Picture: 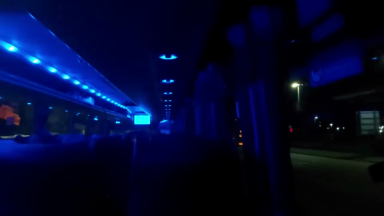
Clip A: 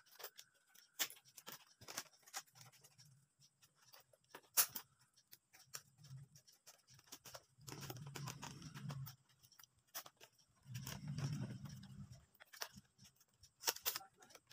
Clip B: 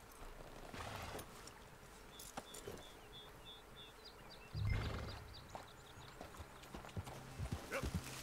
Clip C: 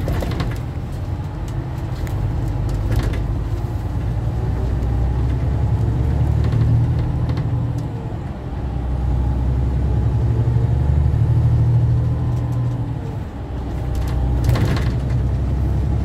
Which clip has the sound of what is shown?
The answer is C